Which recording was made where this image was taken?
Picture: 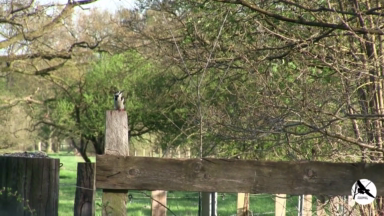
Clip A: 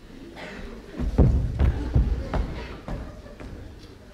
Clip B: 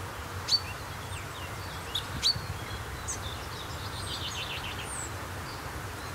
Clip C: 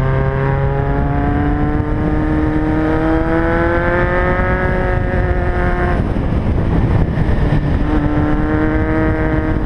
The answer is B